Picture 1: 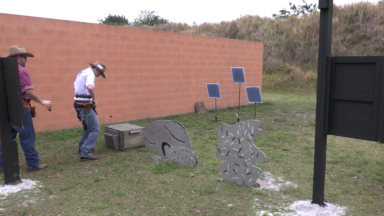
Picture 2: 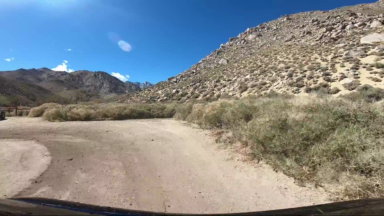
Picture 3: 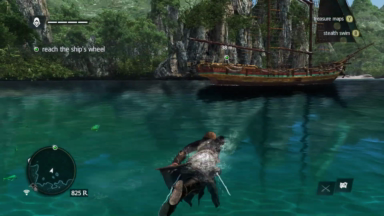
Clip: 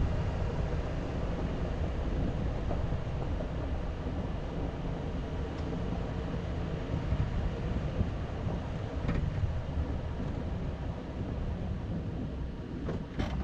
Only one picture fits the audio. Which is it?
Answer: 2